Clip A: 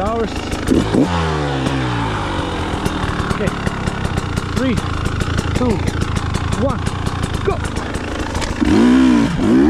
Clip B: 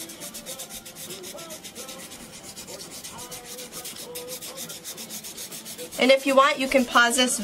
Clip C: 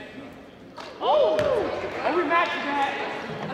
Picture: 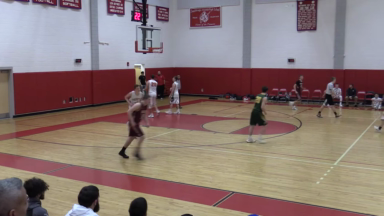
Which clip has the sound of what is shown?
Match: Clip C